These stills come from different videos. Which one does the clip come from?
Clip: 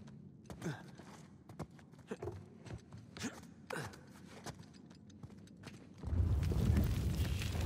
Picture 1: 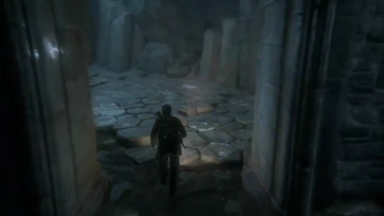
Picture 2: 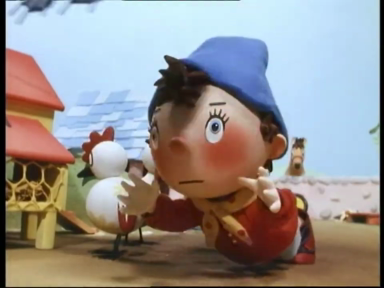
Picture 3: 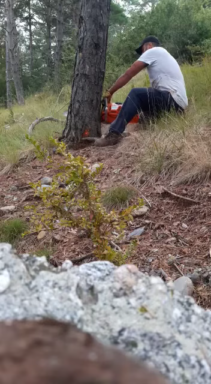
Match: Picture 1